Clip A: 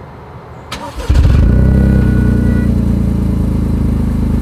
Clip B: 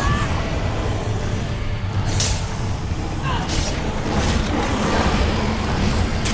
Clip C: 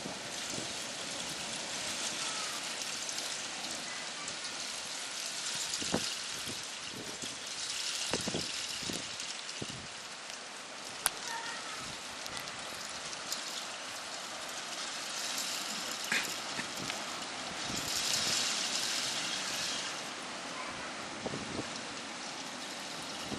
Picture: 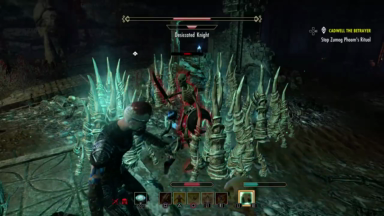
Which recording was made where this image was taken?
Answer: B